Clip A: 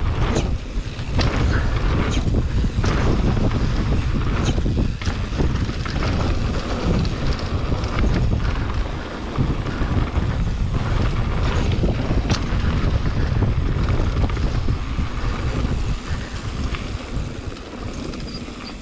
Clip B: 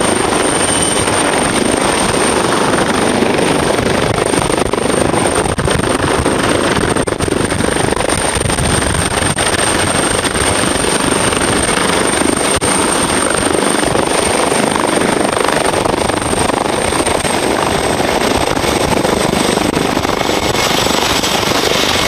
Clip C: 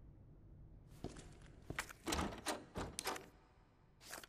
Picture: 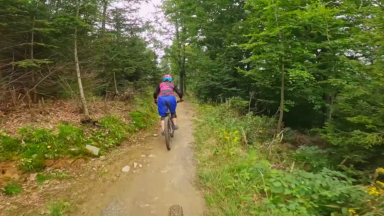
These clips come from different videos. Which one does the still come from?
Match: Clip A